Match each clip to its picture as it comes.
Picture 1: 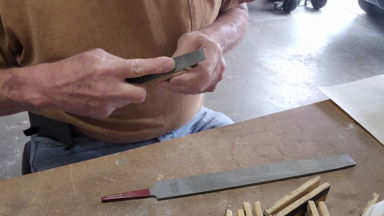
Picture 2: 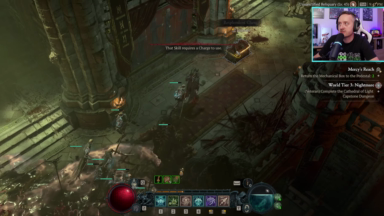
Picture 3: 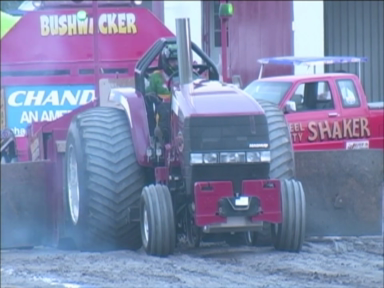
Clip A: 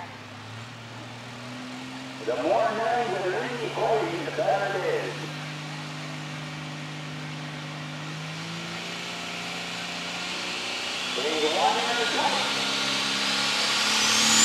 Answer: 3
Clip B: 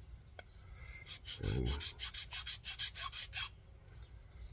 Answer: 1